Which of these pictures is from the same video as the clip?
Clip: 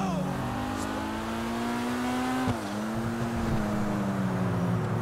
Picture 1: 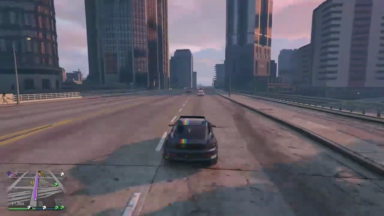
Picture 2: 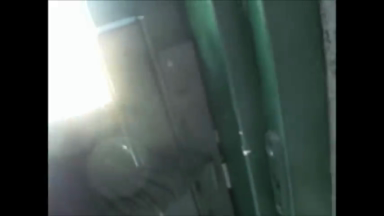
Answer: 1